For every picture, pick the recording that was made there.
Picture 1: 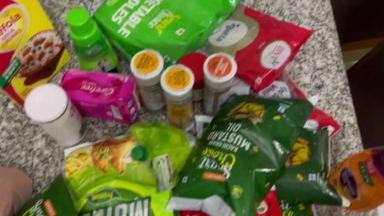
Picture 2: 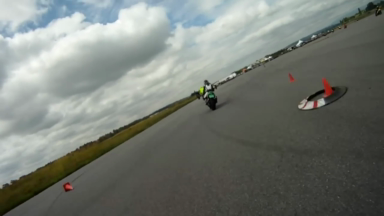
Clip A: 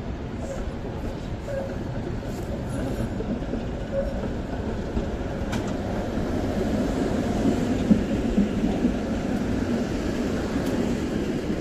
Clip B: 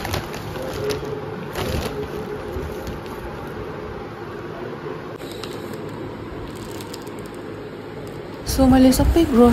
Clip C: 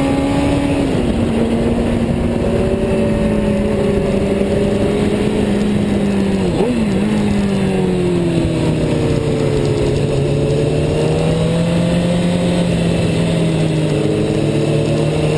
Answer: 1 B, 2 C